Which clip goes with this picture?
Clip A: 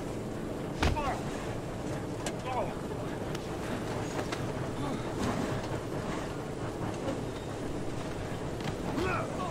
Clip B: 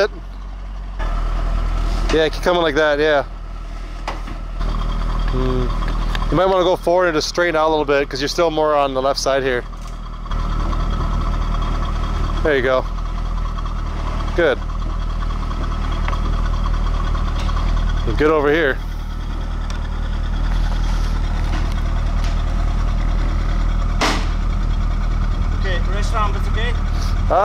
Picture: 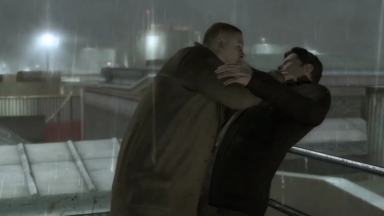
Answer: A